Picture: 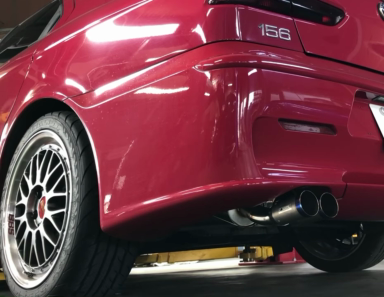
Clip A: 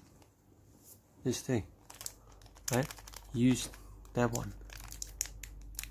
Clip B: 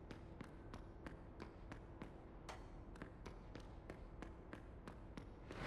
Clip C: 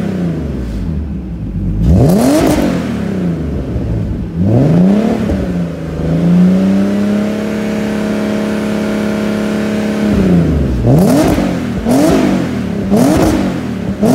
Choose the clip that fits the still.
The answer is C